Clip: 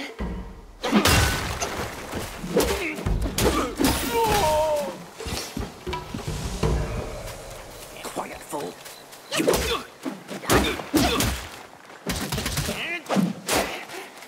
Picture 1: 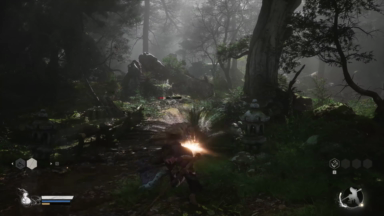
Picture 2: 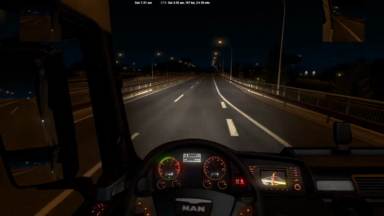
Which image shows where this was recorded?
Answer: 1